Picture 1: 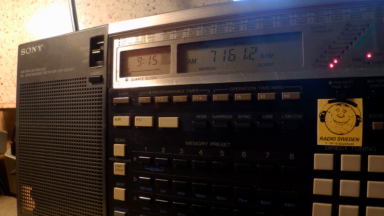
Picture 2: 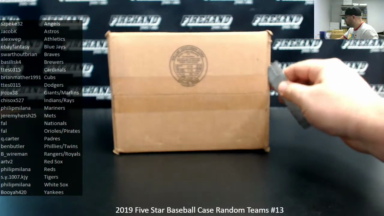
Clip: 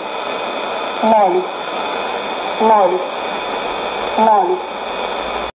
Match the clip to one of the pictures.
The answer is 1